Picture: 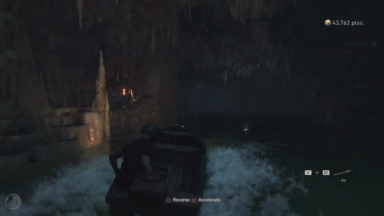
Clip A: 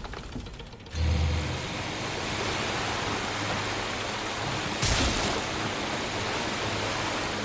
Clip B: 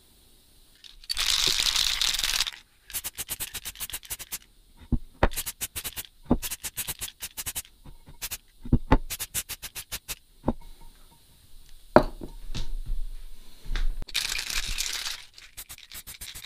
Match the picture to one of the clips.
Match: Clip A